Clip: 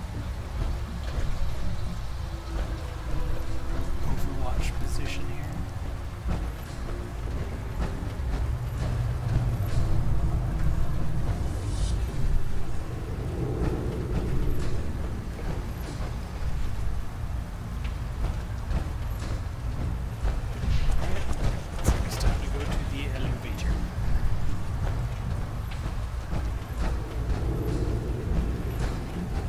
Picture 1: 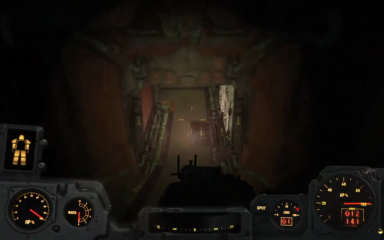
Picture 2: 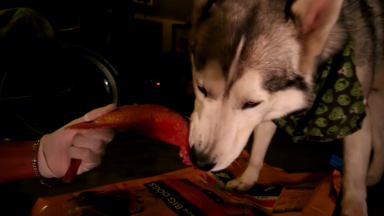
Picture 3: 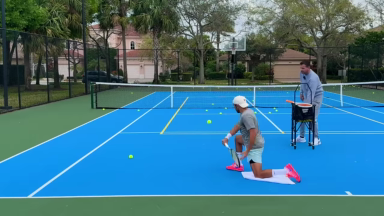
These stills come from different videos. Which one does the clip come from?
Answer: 1